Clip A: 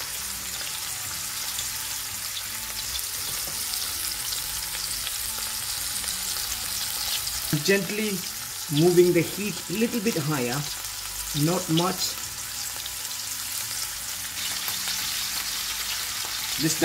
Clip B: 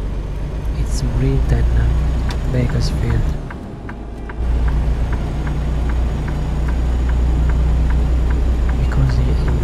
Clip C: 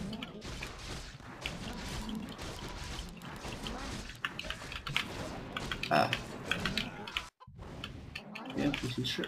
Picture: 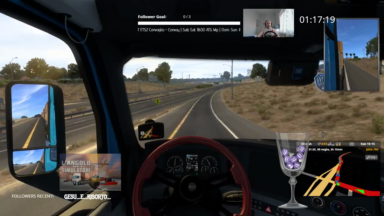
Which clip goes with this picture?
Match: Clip B